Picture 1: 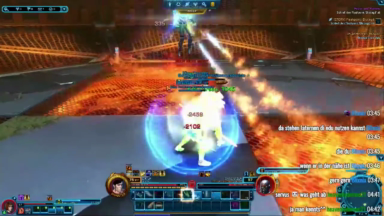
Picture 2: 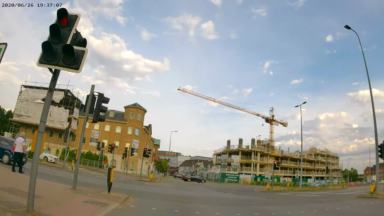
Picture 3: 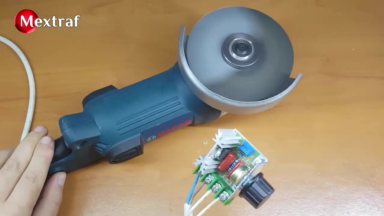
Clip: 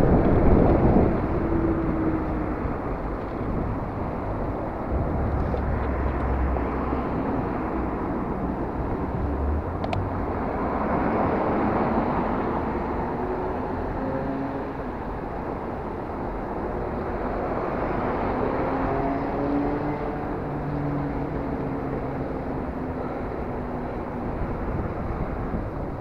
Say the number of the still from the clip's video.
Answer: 2